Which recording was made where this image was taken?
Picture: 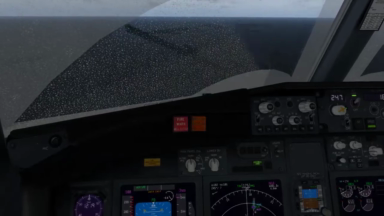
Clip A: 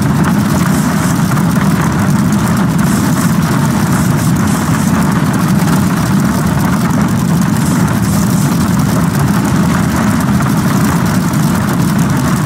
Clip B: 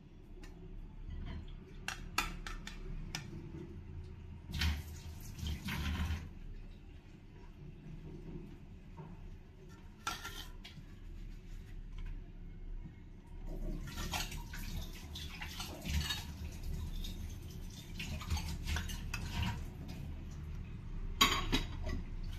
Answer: A